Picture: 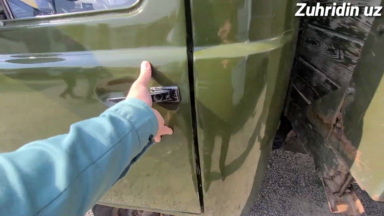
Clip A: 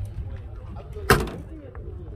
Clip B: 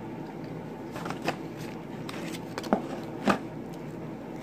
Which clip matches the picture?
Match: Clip A